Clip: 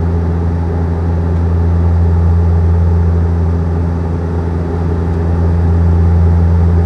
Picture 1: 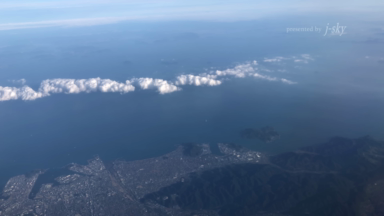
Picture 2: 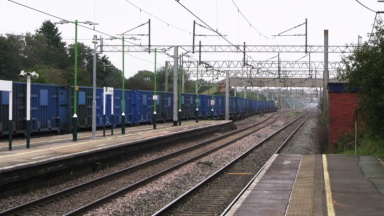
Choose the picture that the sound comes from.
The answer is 1